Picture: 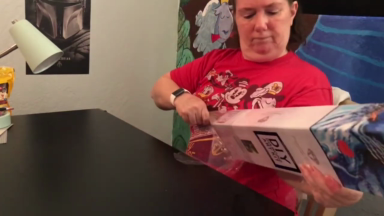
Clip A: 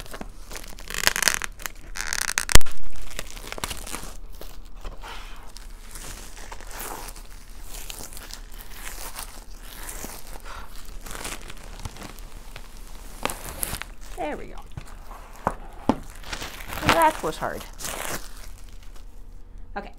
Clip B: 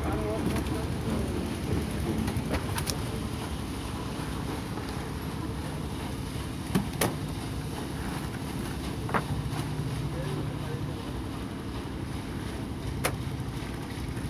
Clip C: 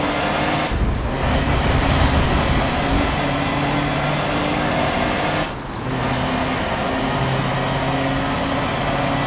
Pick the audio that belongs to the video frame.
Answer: A